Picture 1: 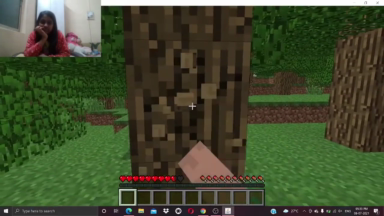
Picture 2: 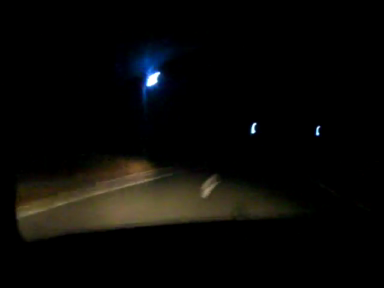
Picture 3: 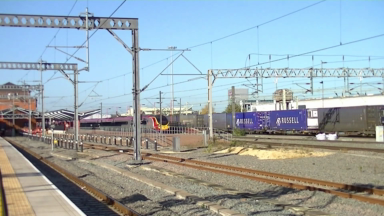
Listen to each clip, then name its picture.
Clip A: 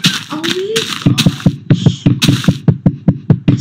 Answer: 1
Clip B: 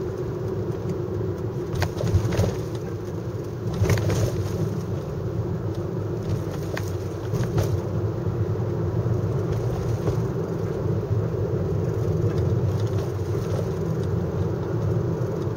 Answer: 2